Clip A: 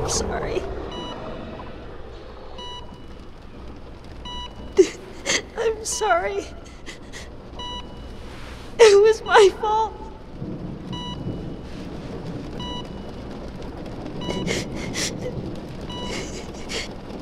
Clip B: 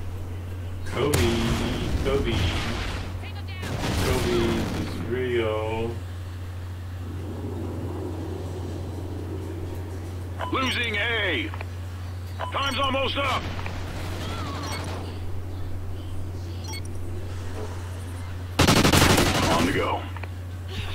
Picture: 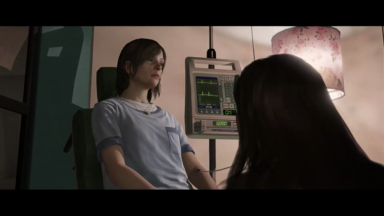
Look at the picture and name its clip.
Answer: A